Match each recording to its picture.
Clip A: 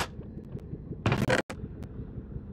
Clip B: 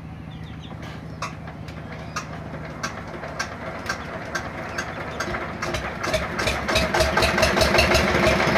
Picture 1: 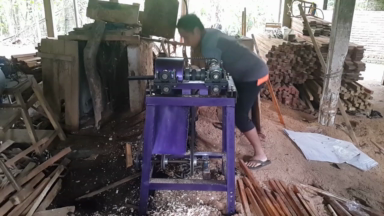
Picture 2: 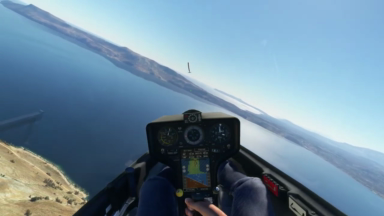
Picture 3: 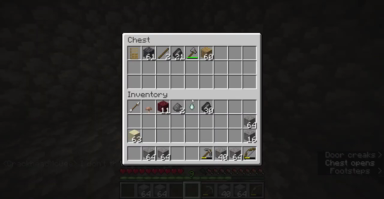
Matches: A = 3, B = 1